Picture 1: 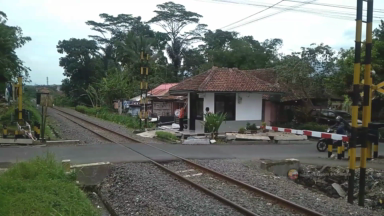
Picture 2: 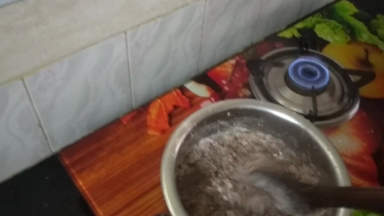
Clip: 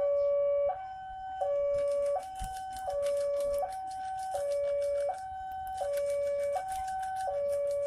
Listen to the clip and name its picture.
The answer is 1